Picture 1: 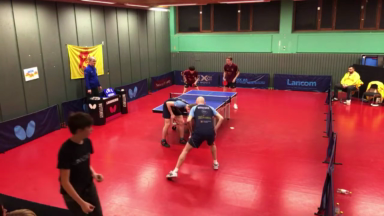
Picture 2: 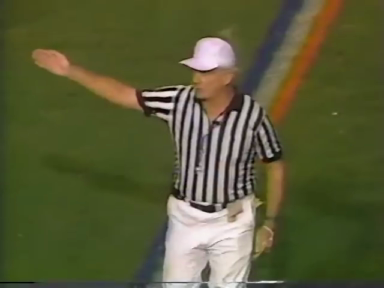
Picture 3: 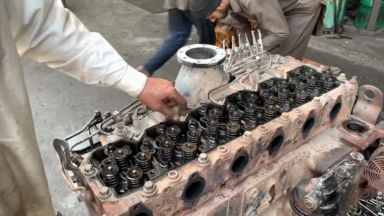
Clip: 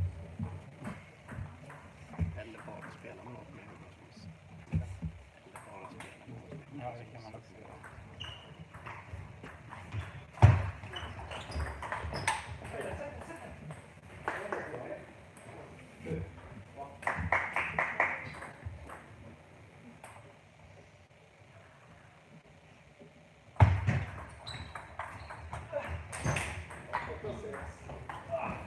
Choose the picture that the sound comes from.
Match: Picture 1